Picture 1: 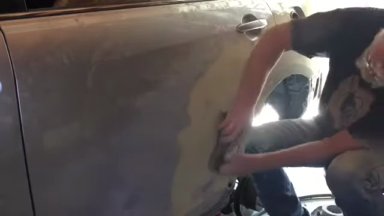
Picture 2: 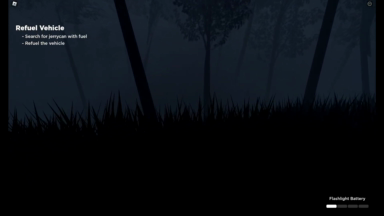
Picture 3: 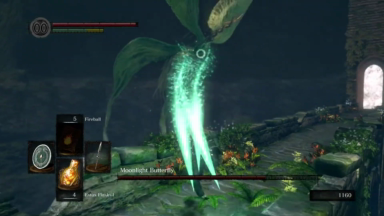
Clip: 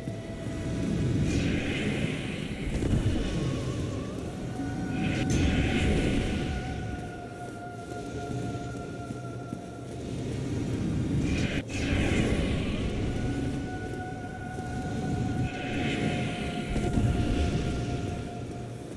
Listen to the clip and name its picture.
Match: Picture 3